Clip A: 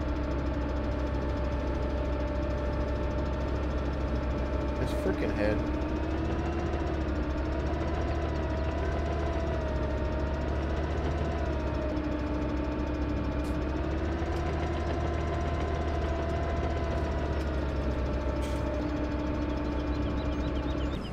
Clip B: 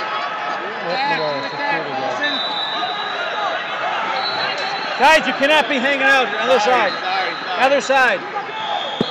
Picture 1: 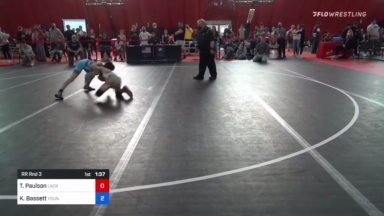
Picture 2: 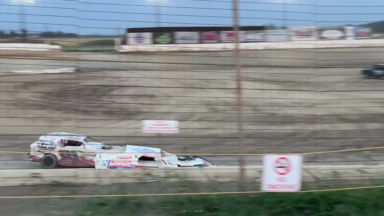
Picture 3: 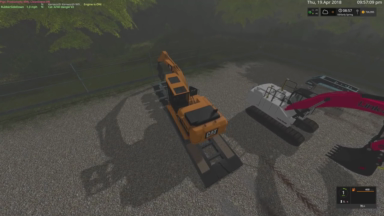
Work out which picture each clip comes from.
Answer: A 3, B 1